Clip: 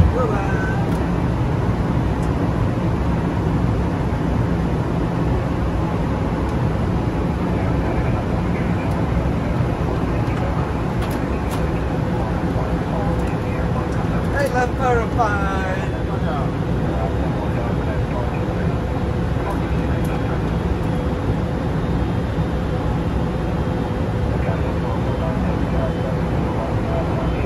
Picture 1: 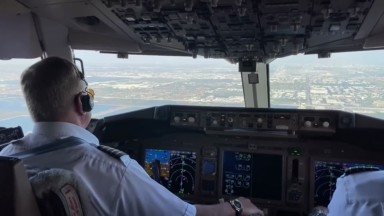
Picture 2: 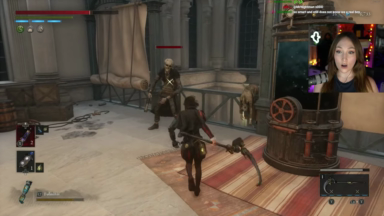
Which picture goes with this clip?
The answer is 1